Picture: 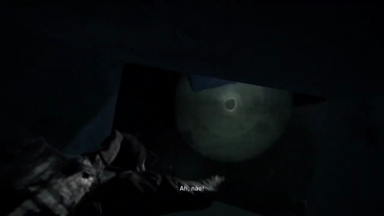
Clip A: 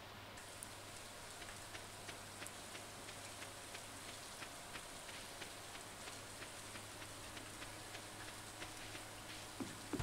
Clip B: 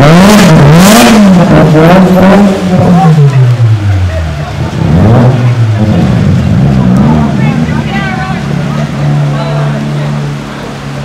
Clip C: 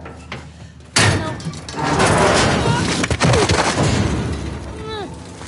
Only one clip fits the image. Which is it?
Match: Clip C